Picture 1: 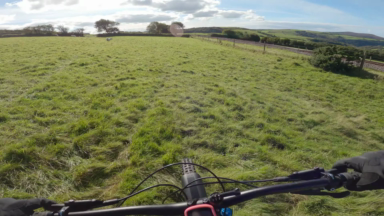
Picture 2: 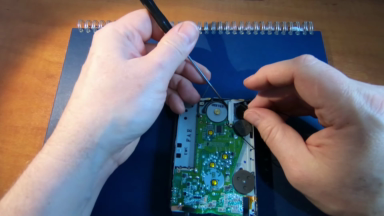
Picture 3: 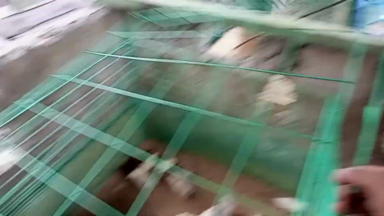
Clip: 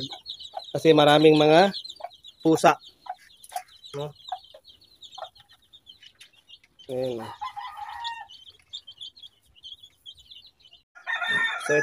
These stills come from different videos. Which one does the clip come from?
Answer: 3